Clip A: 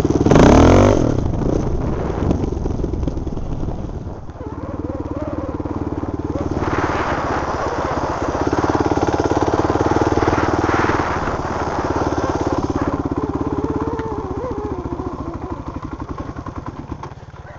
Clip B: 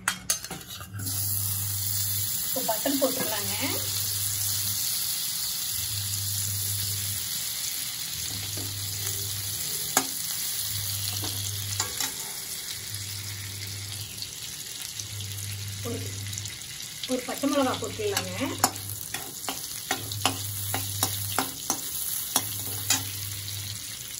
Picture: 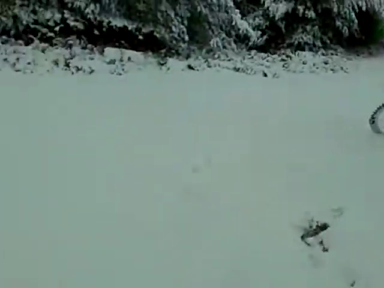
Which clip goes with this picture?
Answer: A